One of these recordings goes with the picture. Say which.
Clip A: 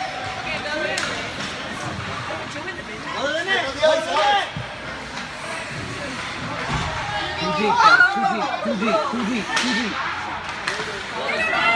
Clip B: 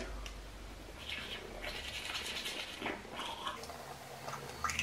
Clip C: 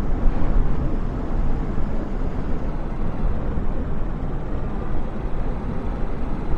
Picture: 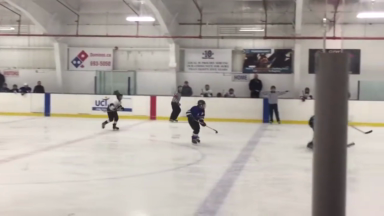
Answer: A